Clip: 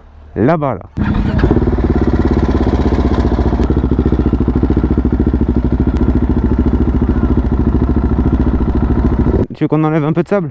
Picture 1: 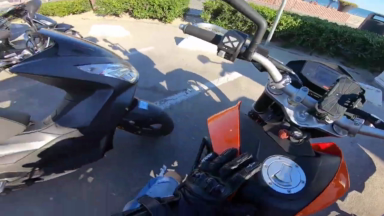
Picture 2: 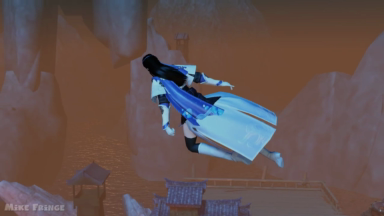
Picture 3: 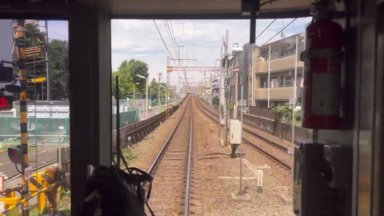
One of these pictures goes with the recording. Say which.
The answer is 1